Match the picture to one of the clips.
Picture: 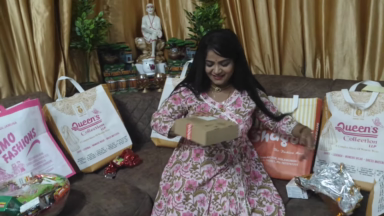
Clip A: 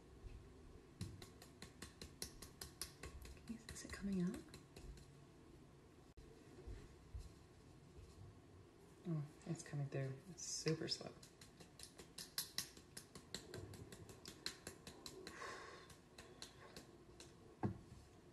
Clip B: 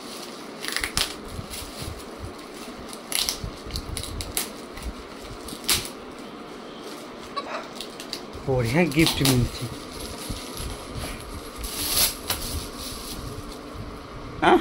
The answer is B